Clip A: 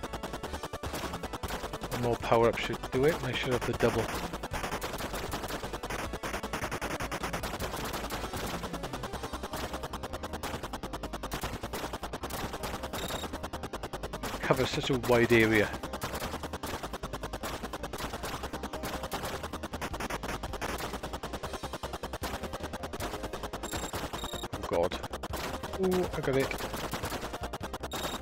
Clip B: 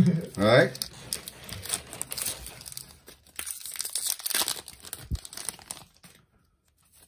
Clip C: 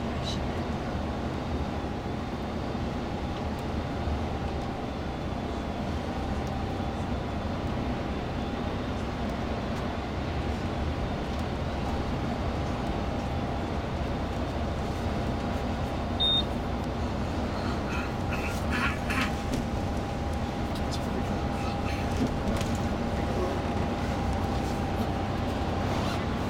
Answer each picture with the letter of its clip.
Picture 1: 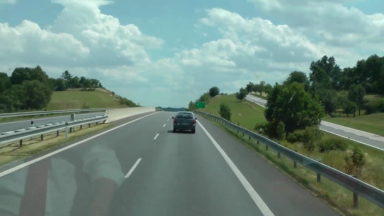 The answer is C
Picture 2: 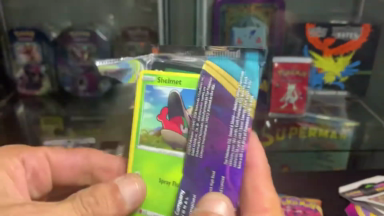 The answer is B